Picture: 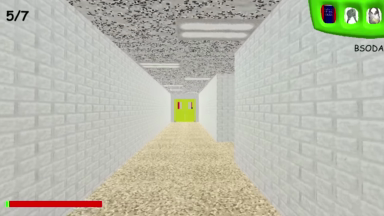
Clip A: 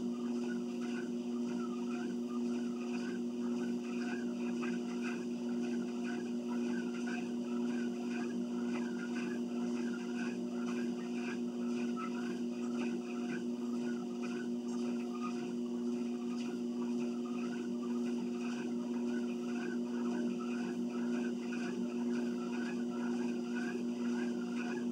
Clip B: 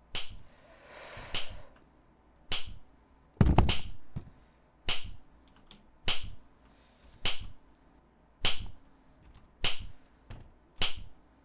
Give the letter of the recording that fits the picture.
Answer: B